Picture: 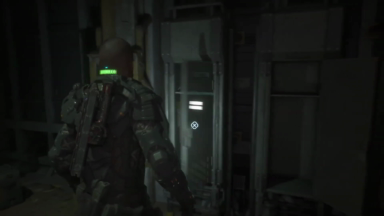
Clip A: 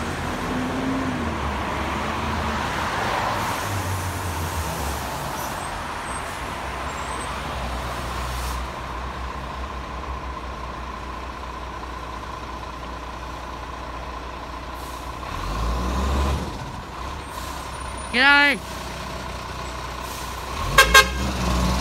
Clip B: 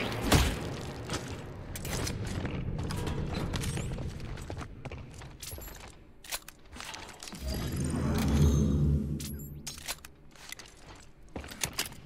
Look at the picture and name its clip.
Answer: B